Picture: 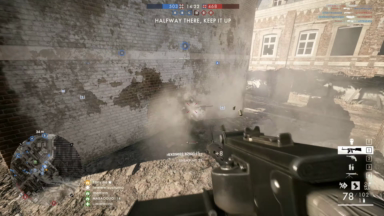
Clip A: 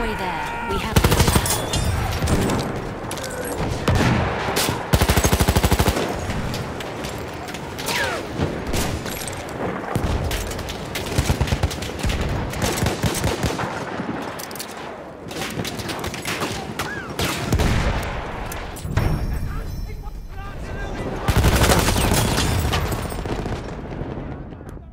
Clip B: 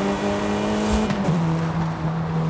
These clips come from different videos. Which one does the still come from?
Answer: A